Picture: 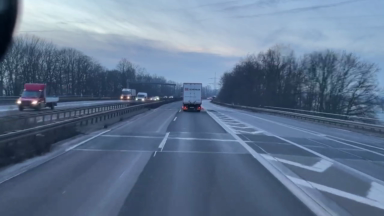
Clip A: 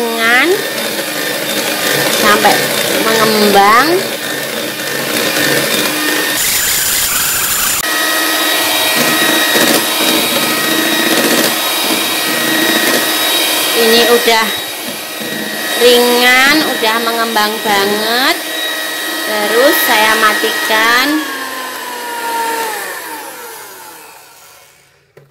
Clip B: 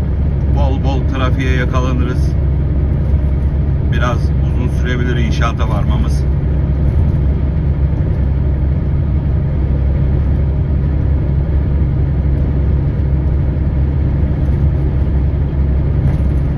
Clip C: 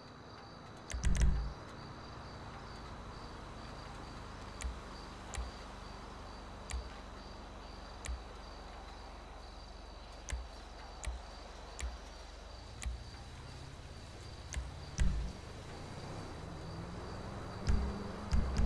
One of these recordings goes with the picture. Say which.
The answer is B